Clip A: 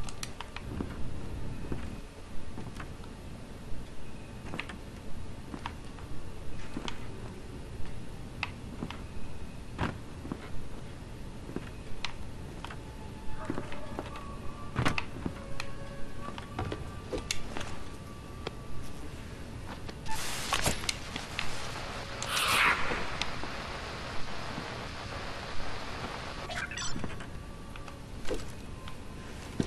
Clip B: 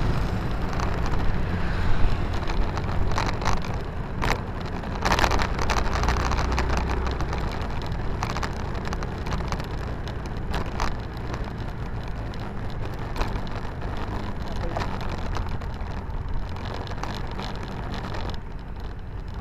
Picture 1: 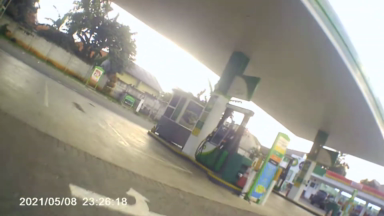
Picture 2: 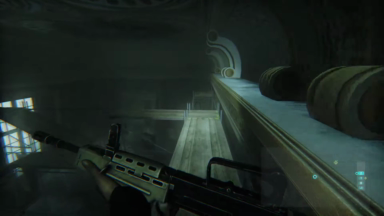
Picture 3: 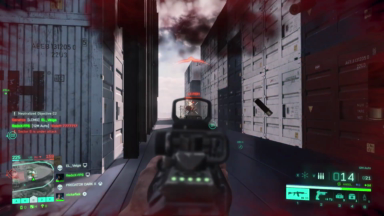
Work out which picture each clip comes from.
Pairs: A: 2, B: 1